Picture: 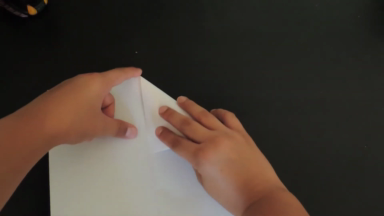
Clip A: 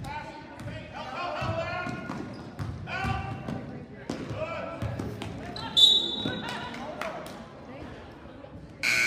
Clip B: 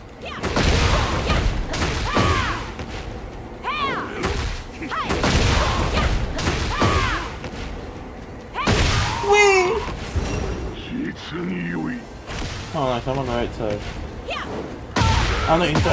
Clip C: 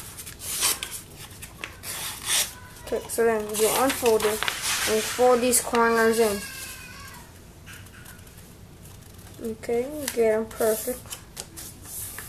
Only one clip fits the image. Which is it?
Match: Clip C